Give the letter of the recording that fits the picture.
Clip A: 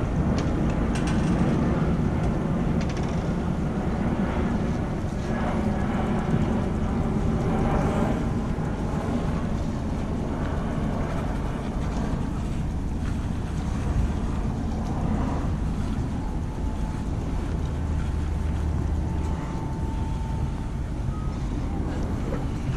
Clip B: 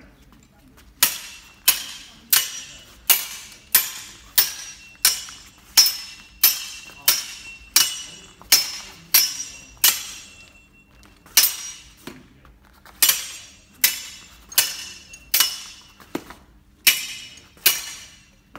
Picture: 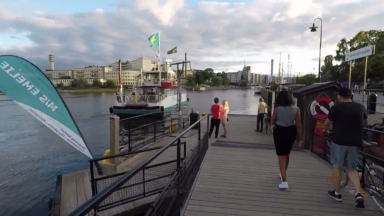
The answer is A